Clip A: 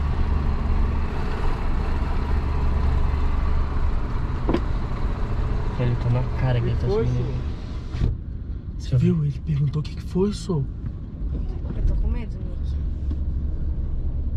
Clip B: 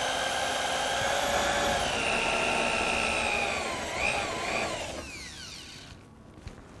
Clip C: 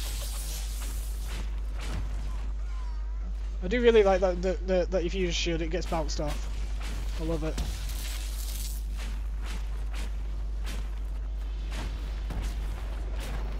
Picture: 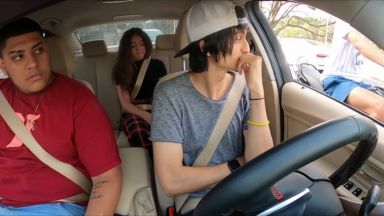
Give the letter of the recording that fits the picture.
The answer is A